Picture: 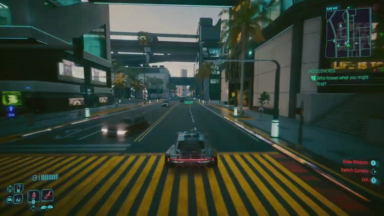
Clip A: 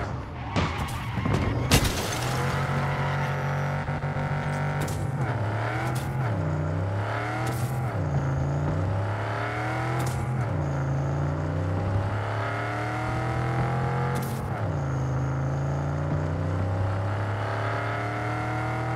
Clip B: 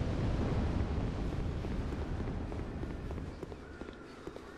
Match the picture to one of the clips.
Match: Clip A